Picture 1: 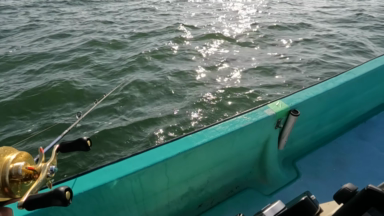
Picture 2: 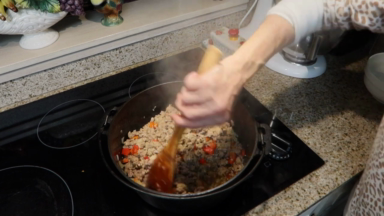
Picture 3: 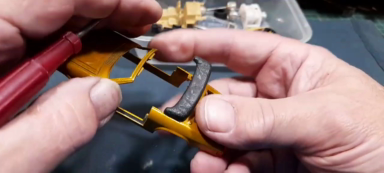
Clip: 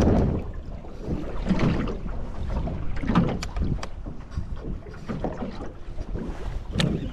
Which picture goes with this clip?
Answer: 1